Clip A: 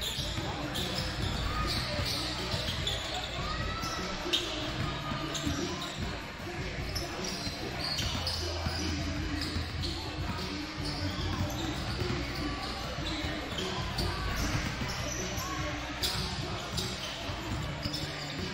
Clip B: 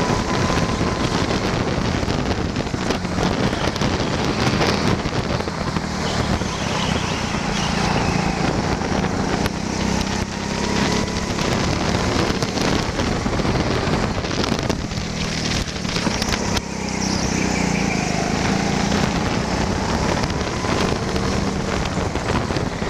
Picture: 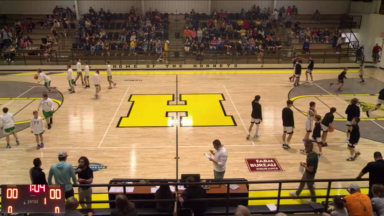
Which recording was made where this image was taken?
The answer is A